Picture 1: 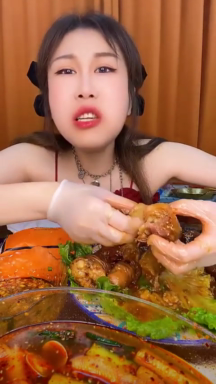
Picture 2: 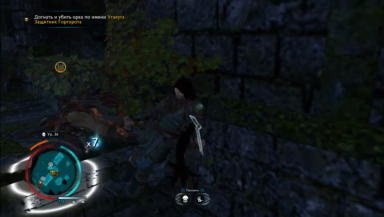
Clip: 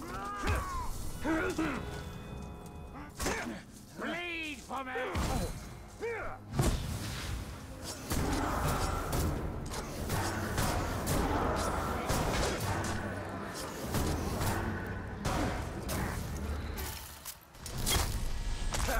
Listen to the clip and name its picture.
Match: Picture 2